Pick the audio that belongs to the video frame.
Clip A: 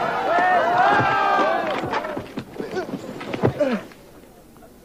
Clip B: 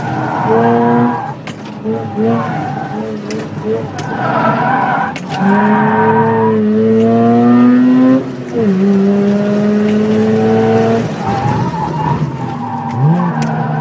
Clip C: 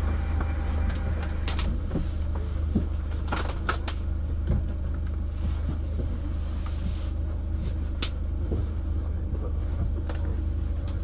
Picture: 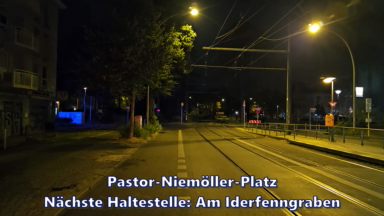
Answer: C